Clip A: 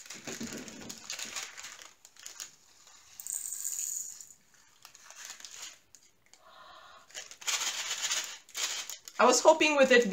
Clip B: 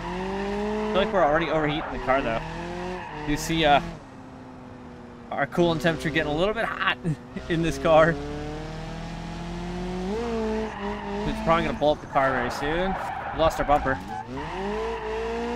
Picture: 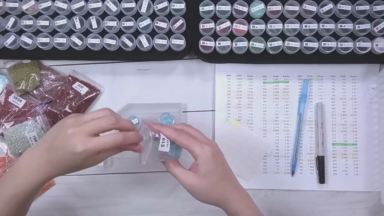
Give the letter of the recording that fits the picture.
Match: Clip A